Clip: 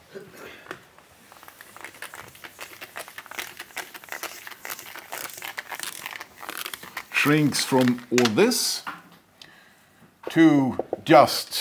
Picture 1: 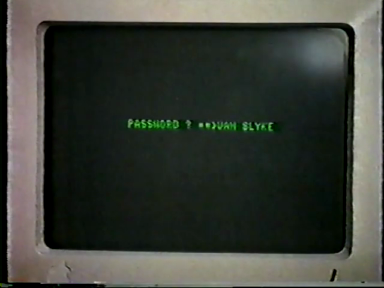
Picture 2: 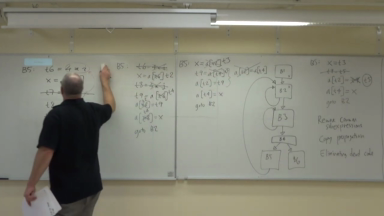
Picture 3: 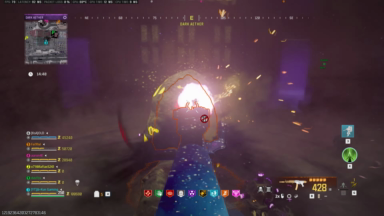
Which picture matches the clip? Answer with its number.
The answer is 2